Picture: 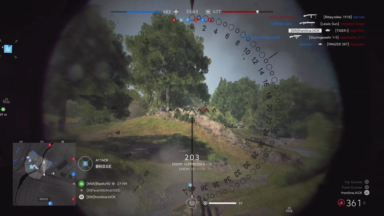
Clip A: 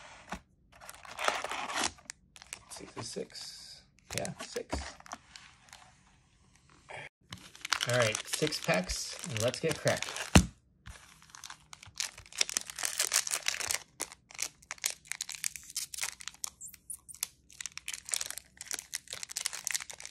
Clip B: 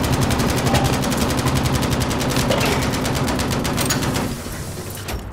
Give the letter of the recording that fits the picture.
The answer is B